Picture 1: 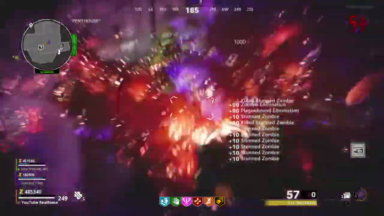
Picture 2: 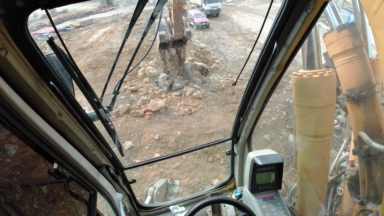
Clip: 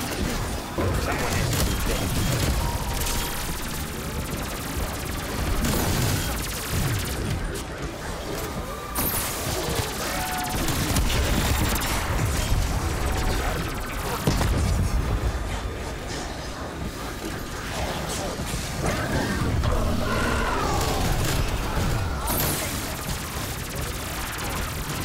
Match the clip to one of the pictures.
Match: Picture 1